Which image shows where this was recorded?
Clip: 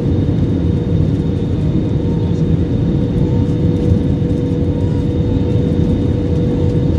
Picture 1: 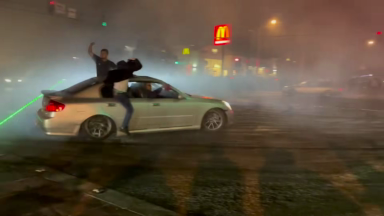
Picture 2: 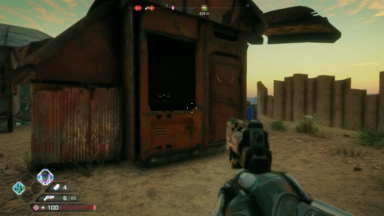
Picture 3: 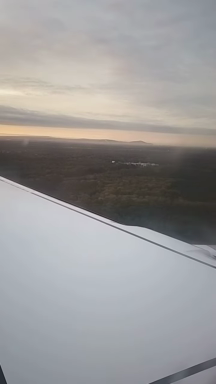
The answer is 3